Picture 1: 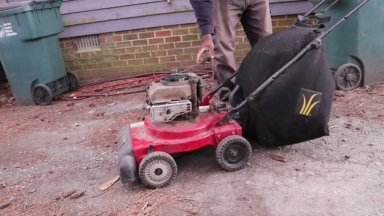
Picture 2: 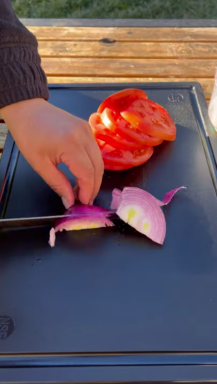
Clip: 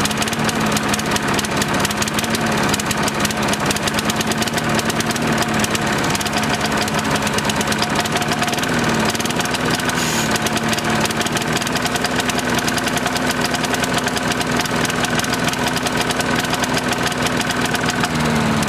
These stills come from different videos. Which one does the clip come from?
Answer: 1